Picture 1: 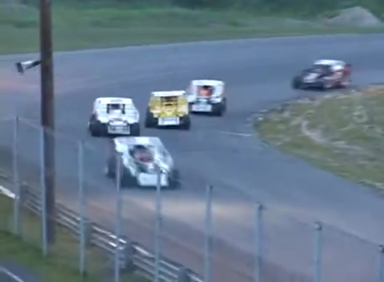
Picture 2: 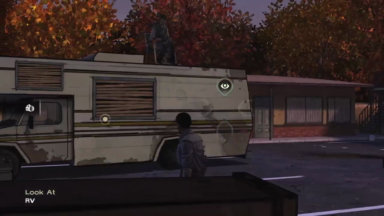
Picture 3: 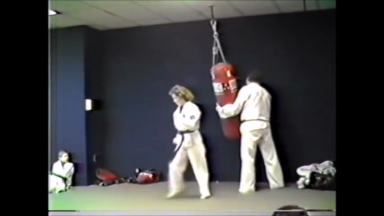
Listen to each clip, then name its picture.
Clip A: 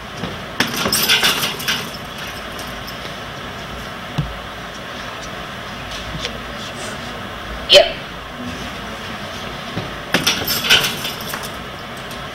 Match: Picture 3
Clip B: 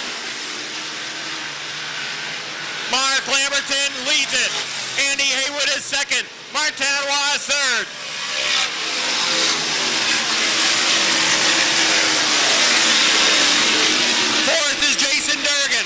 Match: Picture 1